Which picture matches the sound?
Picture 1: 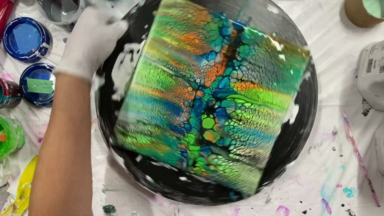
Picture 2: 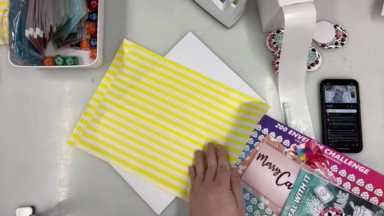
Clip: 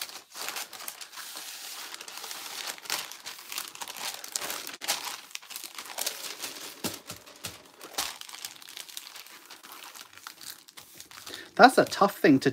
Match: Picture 2